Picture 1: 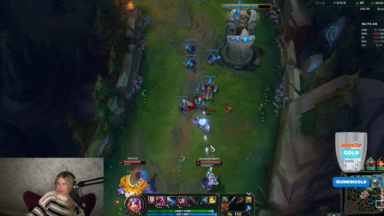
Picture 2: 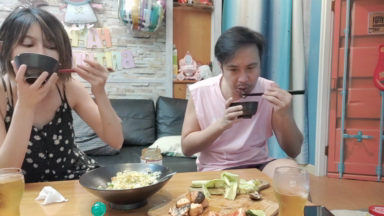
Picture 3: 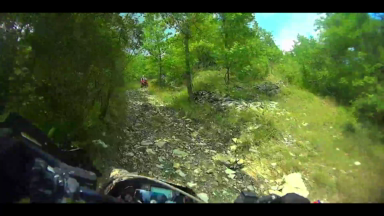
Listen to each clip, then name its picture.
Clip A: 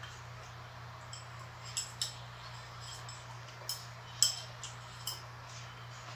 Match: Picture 2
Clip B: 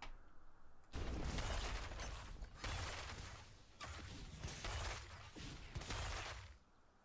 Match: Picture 1